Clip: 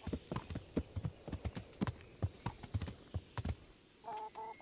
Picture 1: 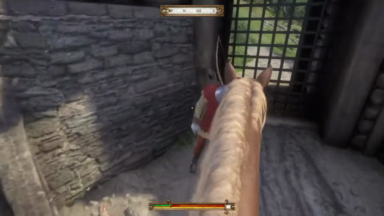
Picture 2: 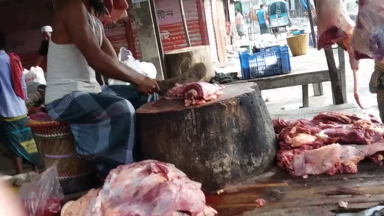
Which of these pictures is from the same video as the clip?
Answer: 1